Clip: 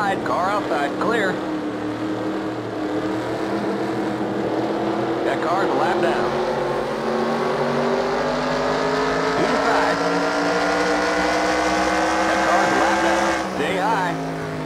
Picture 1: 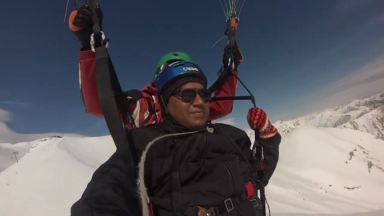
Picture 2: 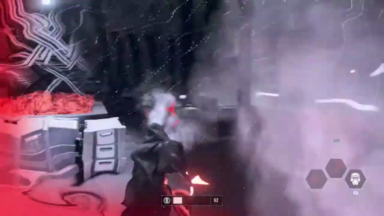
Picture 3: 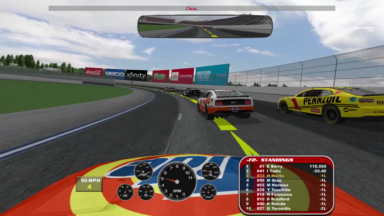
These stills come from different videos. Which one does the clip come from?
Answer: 3